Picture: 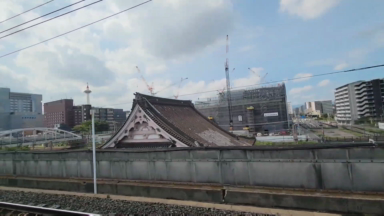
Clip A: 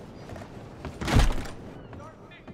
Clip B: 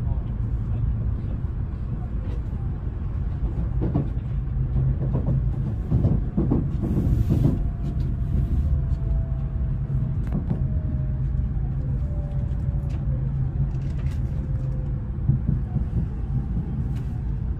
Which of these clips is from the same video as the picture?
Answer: B